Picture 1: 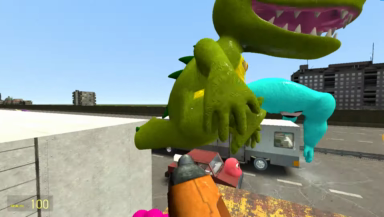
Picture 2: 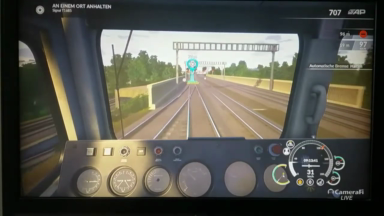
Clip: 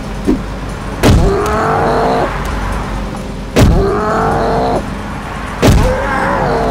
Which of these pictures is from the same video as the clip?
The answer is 1